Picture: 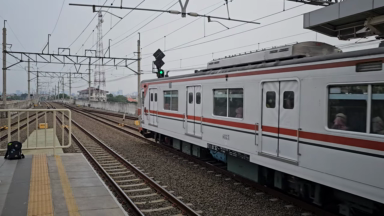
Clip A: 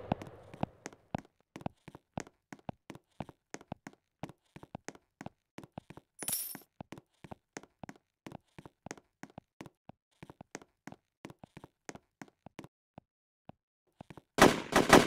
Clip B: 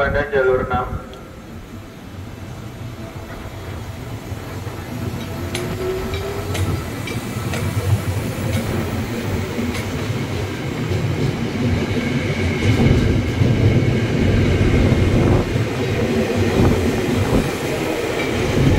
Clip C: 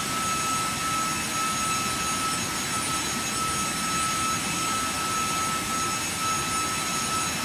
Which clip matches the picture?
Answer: B